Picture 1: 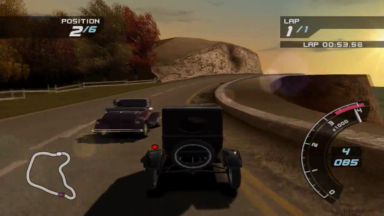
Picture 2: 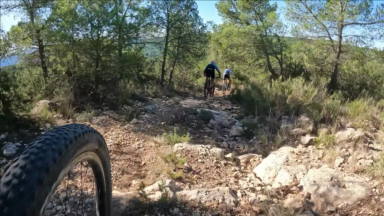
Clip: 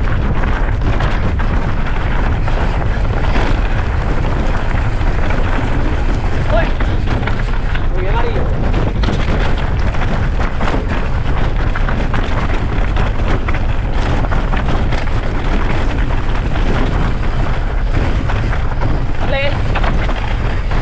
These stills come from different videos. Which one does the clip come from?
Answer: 2